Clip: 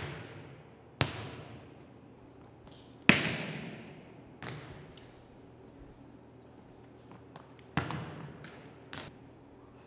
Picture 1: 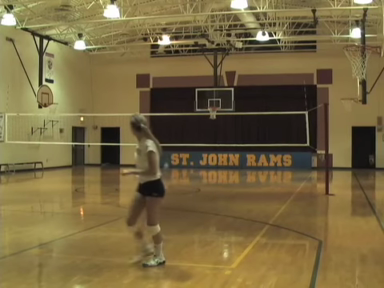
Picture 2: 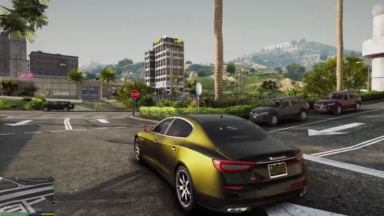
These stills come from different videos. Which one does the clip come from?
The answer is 1